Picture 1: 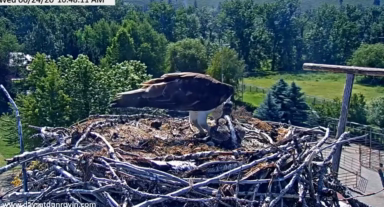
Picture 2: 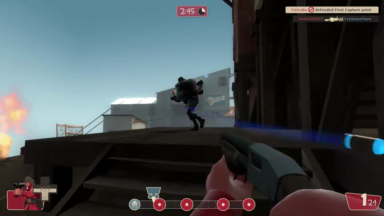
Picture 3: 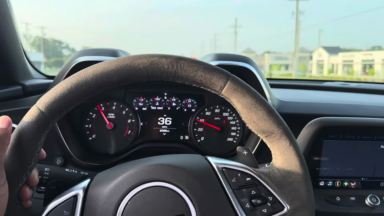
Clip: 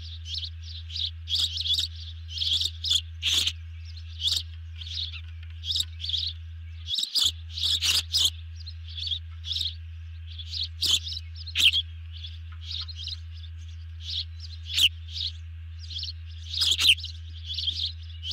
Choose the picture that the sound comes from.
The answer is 1